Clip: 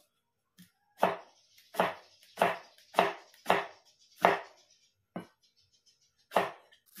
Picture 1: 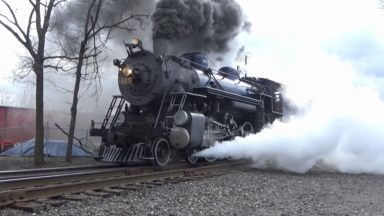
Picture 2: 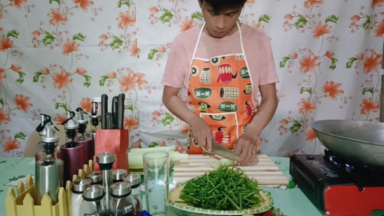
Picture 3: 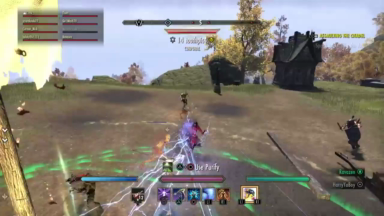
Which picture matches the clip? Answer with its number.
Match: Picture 2